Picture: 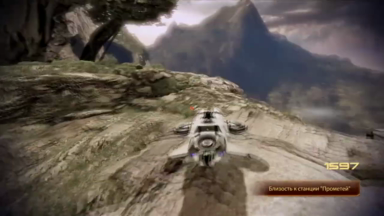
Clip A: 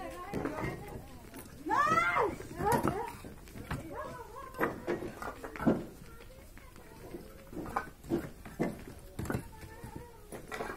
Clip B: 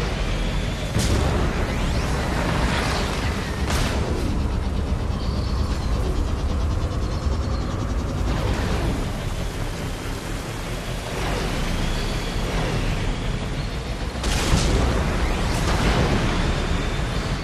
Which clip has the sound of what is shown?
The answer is B